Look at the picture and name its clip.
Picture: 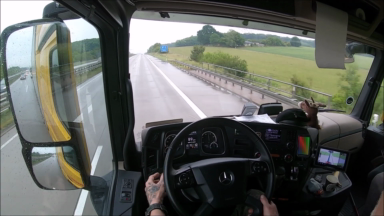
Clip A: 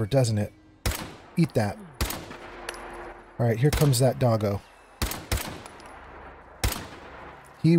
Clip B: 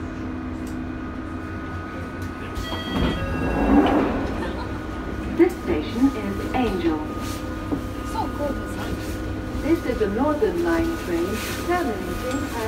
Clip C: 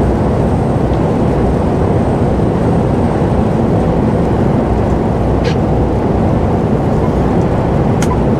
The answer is C